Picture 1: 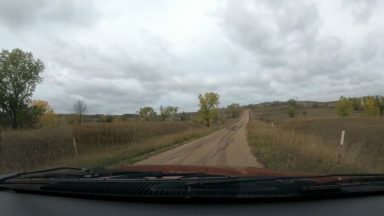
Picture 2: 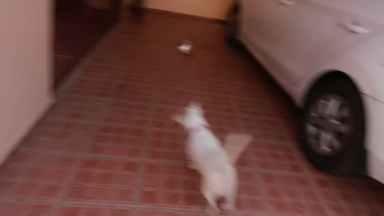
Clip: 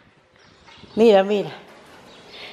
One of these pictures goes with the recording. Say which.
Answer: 2